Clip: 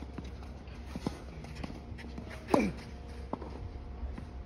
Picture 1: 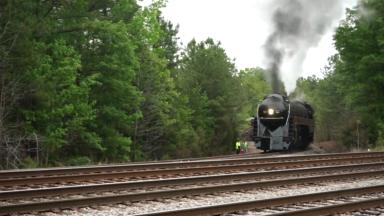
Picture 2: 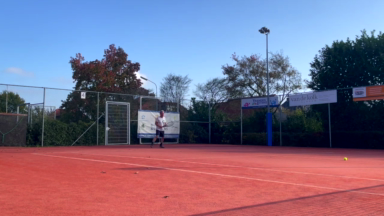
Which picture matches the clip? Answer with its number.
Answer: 2